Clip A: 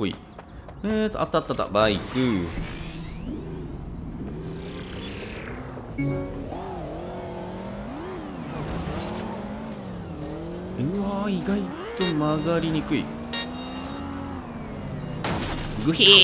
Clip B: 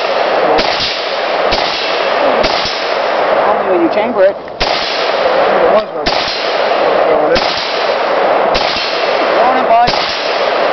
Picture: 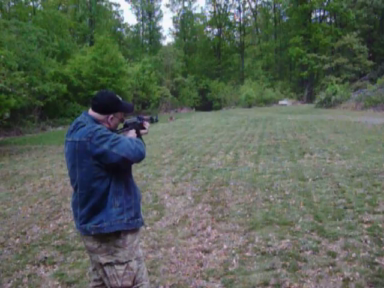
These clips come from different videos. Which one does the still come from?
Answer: B